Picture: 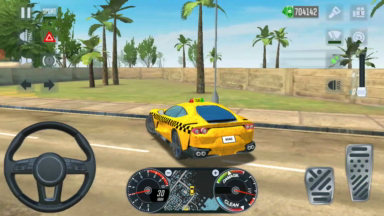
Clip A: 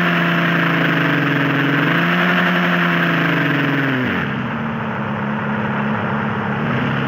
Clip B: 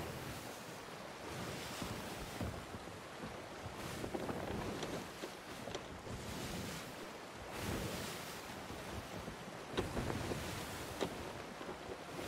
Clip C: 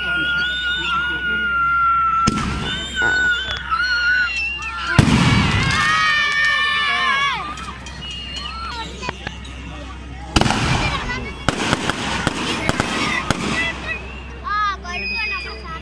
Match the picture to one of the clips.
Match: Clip A